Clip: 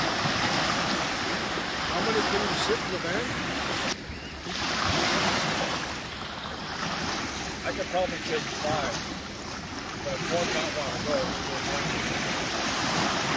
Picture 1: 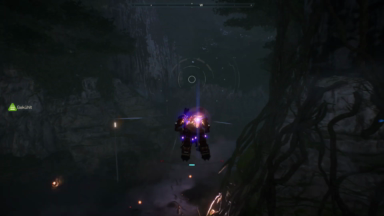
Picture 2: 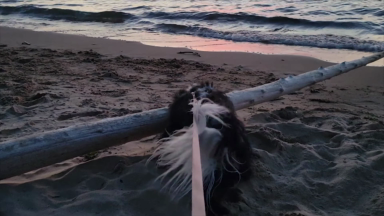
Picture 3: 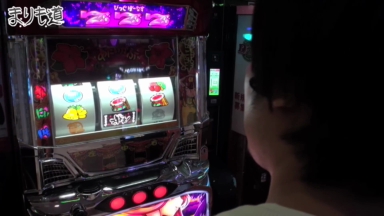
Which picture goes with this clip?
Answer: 2